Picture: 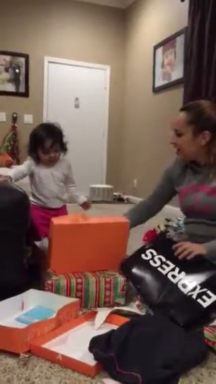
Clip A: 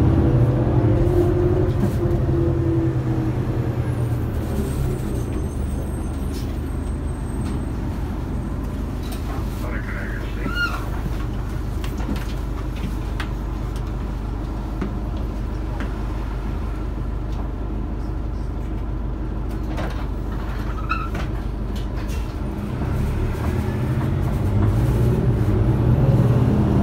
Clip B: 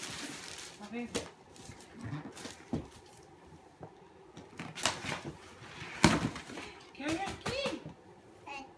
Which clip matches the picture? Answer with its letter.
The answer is B